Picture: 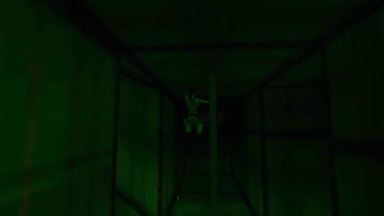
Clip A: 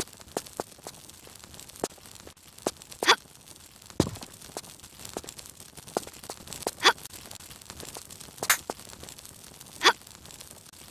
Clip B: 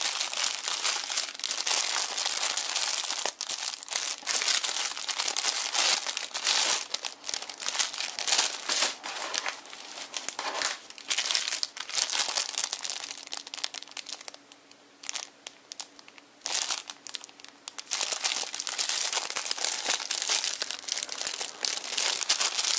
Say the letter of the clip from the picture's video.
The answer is A